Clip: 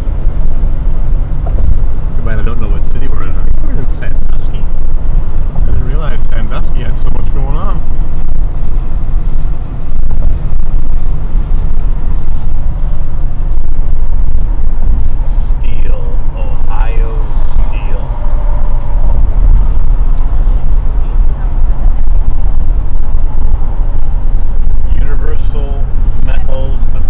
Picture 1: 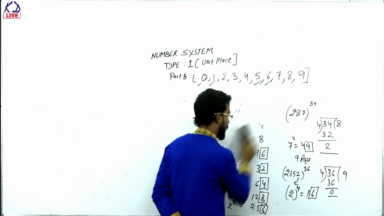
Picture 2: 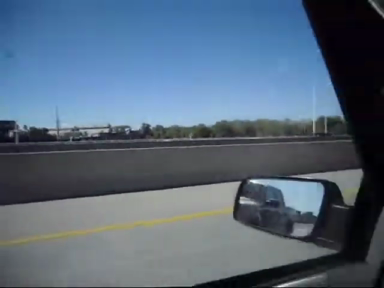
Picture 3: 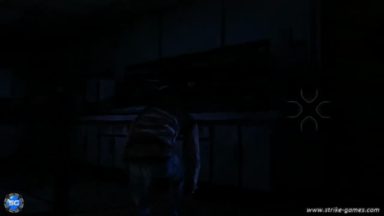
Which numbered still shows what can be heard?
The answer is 2